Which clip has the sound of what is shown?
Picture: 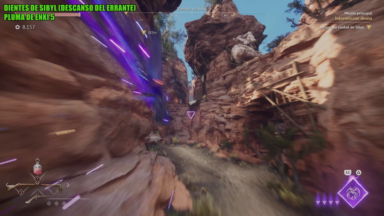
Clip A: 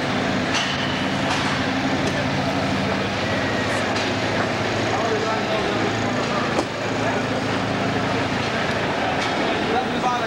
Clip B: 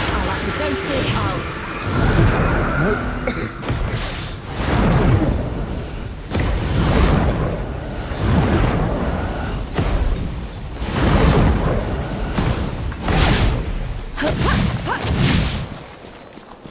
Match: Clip B